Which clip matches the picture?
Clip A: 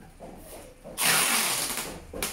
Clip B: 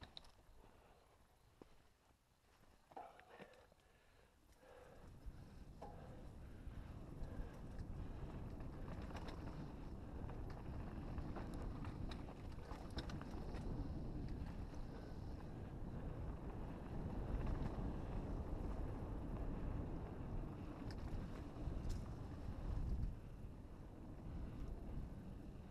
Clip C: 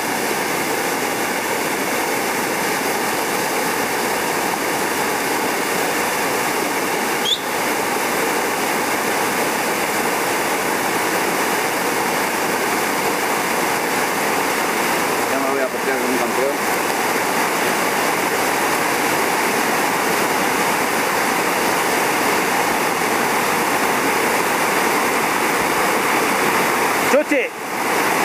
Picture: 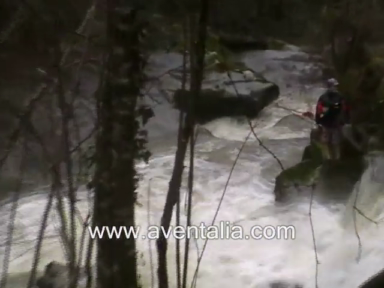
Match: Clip C